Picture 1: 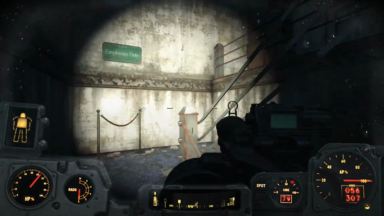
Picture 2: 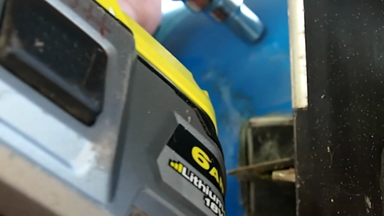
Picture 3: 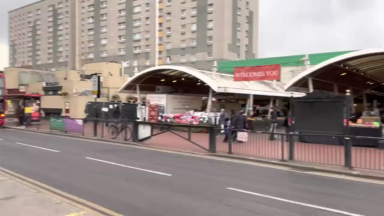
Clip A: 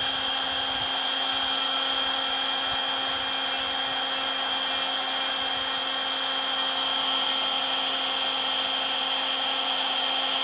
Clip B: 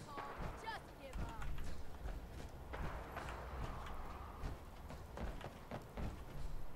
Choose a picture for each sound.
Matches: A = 2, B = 1